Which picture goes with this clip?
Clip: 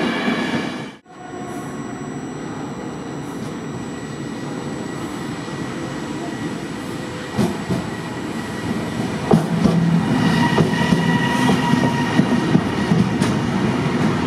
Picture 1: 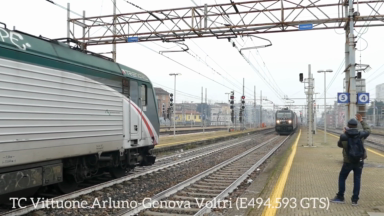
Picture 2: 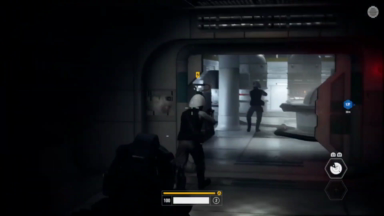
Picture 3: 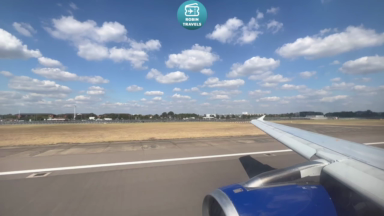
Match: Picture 1